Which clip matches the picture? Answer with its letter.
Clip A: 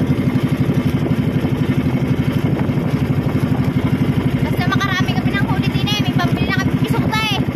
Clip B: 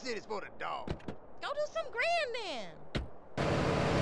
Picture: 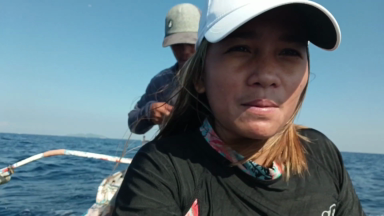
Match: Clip A